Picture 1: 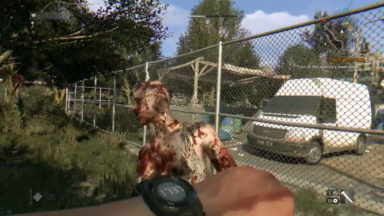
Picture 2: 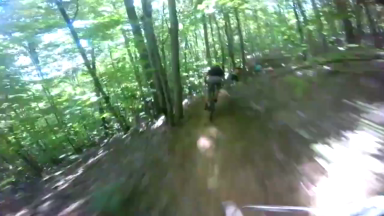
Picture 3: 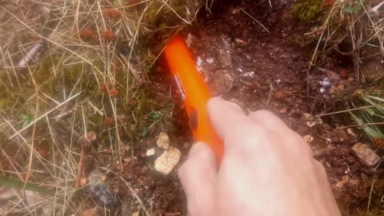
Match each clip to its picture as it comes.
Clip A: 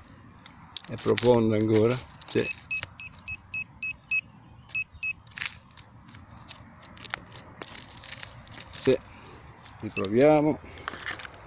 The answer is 3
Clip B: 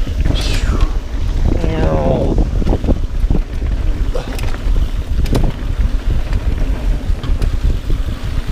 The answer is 2